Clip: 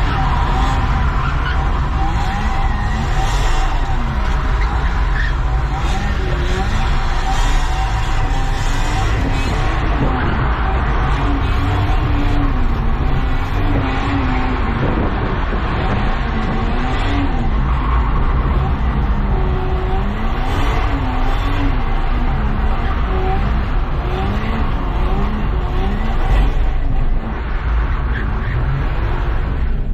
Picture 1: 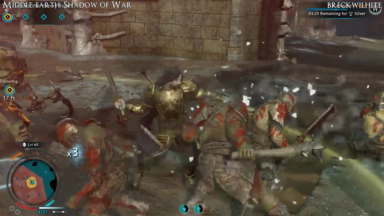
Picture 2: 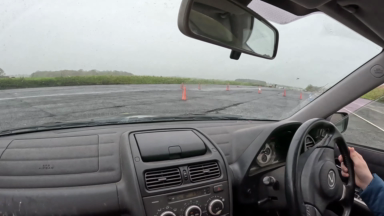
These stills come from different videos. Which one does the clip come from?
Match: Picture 2